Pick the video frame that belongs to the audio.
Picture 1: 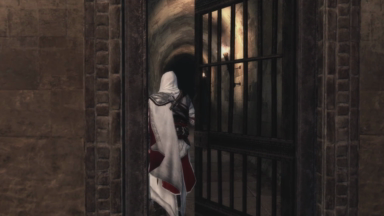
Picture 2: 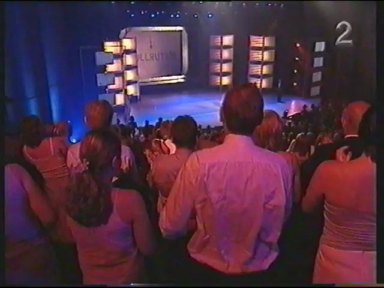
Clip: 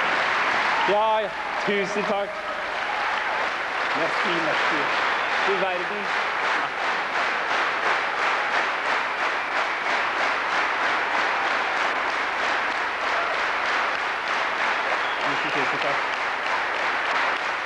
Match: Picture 2